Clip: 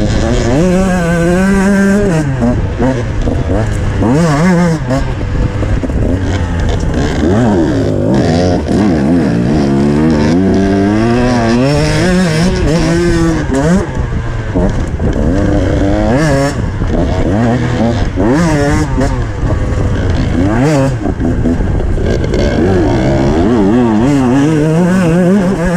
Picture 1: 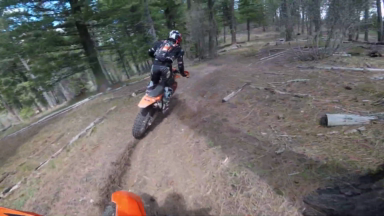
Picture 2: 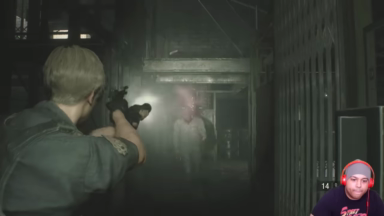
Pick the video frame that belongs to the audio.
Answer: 1